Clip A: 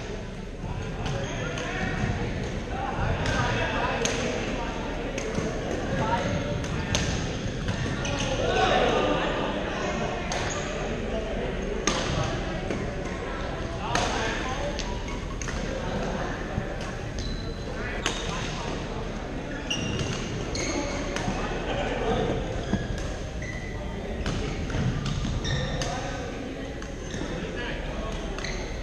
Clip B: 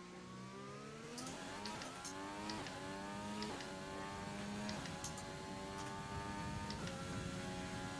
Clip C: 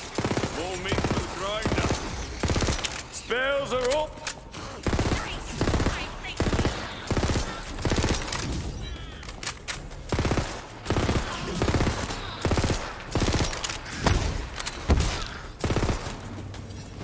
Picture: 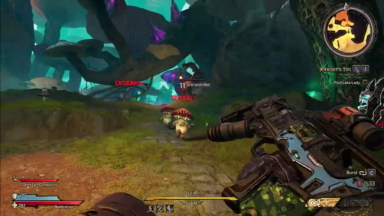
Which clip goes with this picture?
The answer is C